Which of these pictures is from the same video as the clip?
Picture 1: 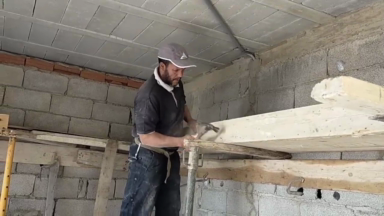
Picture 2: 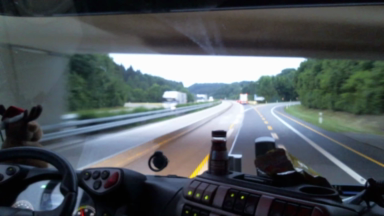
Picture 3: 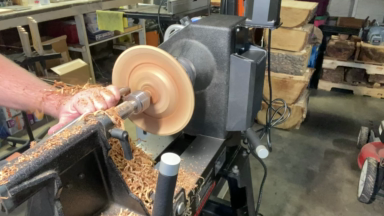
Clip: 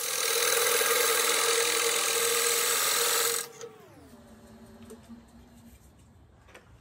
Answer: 3